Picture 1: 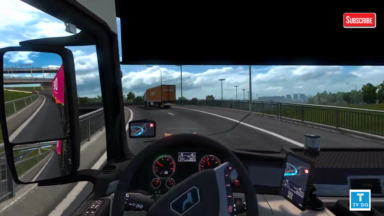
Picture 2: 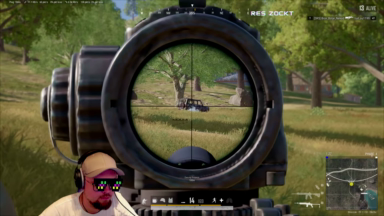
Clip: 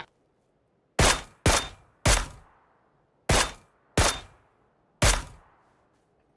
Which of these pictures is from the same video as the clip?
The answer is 2